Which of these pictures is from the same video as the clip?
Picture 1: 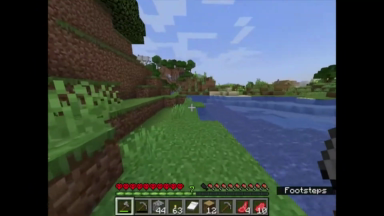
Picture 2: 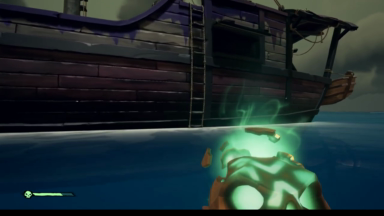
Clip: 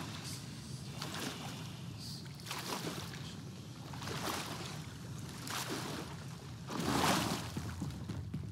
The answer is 2